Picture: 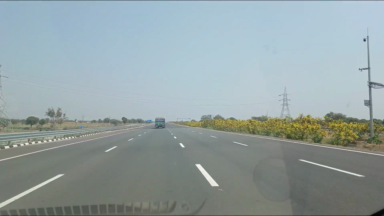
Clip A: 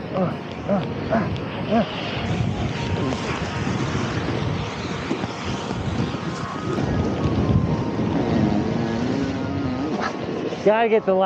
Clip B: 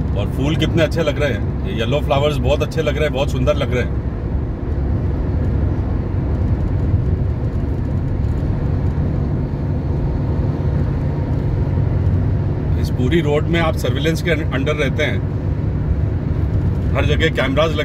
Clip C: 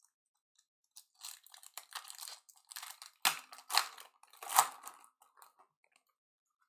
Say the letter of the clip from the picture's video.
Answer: B